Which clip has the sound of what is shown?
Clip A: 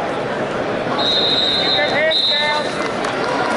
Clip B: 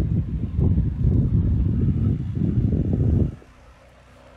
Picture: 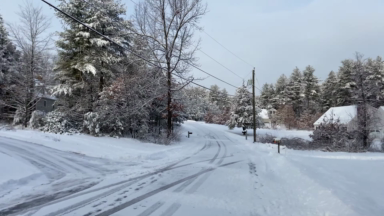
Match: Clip B